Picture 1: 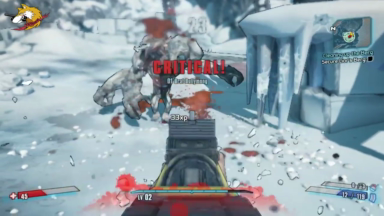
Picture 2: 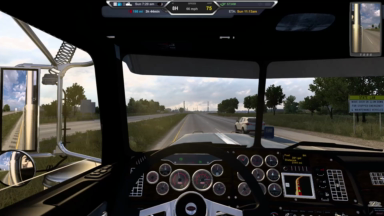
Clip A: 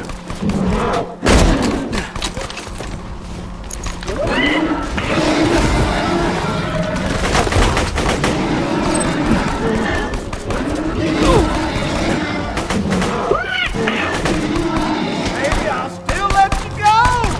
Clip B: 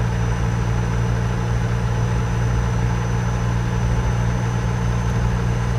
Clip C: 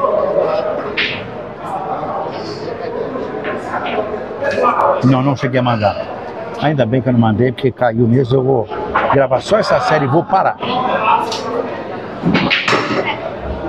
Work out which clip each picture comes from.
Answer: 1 A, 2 B